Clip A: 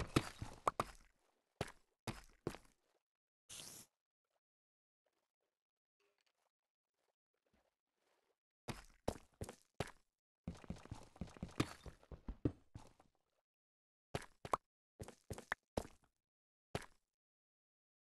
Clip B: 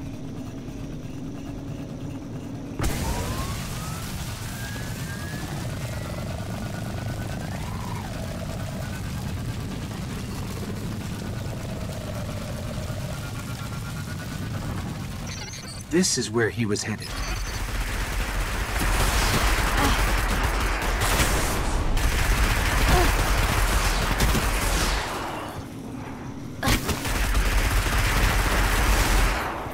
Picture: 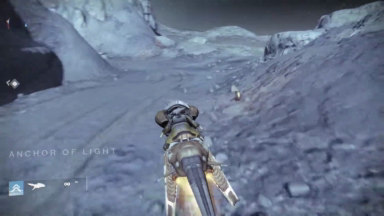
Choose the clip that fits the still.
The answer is B